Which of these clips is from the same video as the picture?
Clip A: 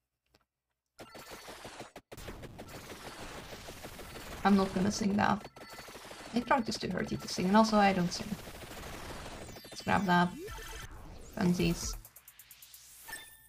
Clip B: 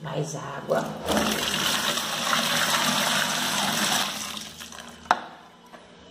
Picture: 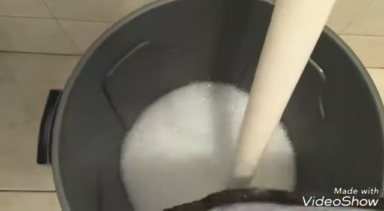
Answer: B